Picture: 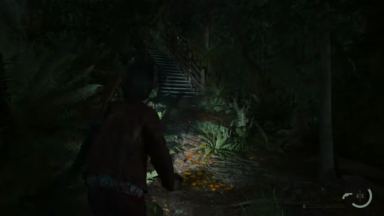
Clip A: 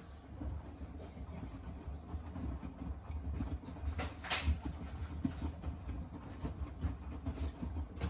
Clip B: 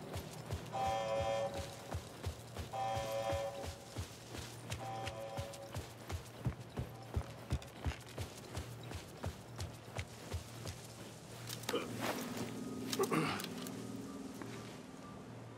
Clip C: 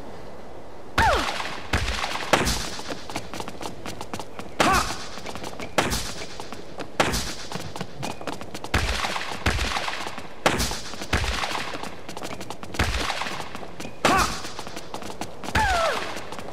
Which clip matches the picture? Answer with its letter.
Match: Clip B